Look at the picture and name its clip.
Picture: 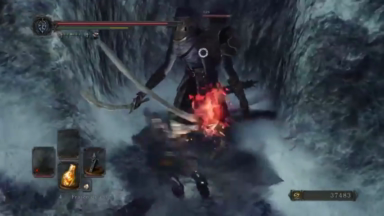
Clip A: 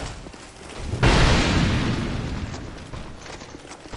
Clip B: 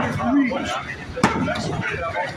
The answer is A